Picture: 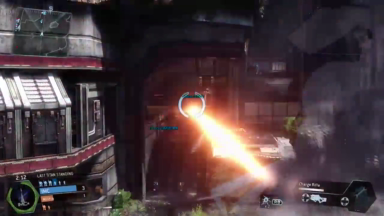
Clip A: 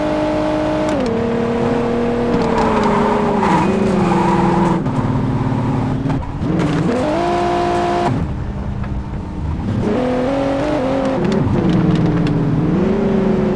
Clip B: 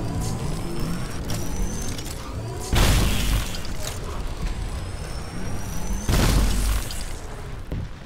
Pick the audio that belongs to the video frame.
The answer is B